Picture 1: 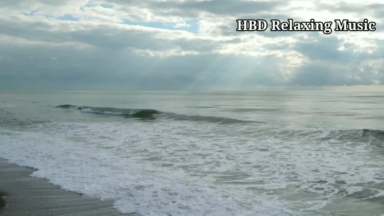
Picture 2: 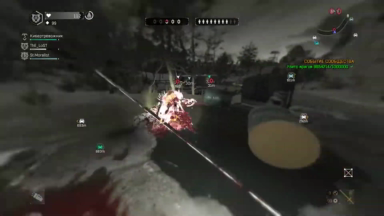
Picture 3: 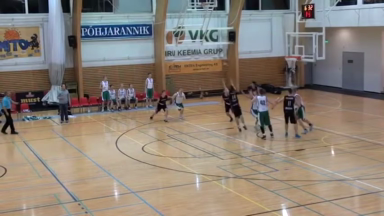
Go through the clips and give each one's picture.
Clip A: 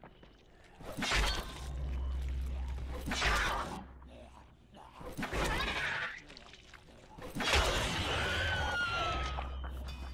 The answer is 2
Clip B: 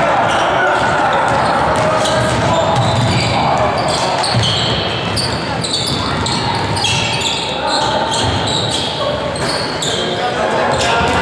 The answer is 3